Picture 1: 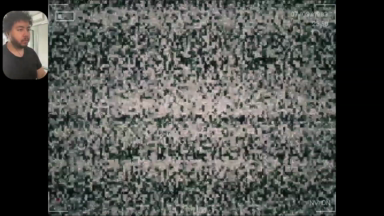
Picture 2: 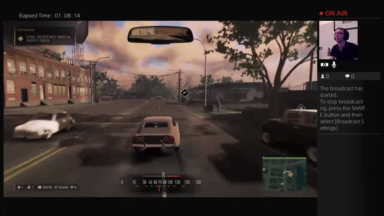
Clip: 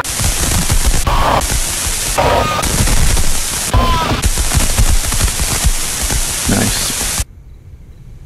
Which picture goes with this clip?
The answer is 1